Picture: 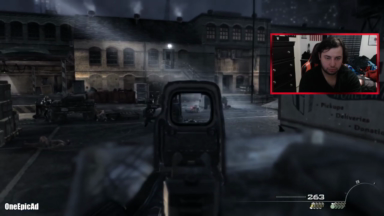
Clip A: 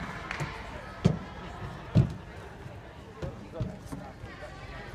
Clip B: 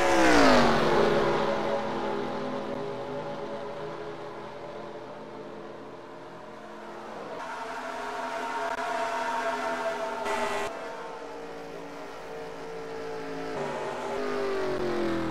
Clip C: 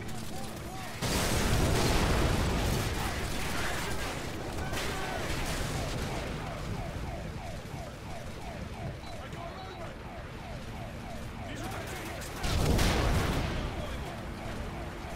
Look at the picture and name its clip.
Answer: C